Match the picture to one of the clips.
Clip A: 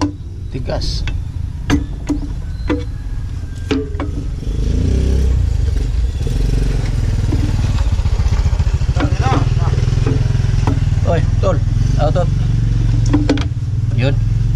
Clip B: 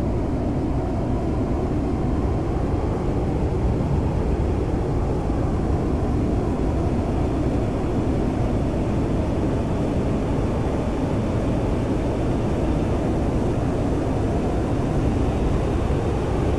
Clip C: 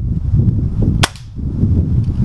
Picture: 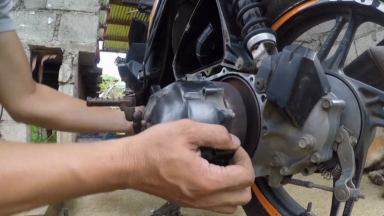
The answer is A